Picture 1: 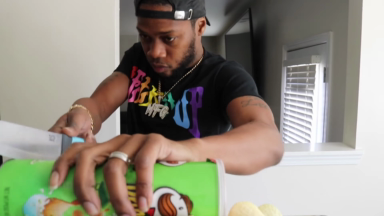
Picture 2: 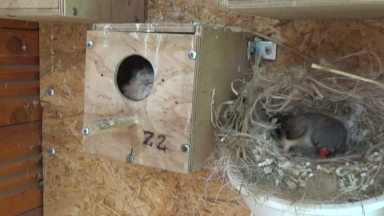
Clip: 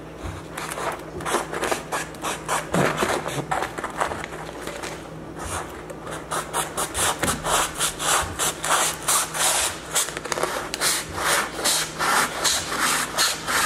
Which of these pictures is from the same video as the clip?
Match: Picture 1